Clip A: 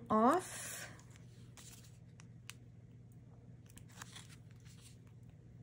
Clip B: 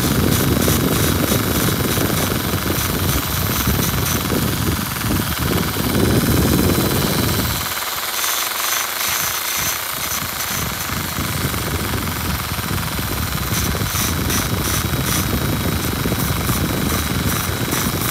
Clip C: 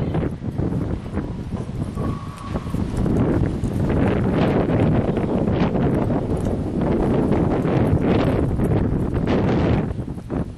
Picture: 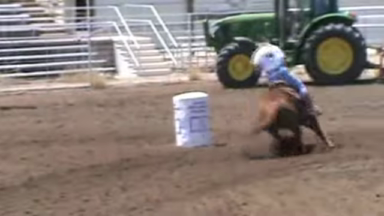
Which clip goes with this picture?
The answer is C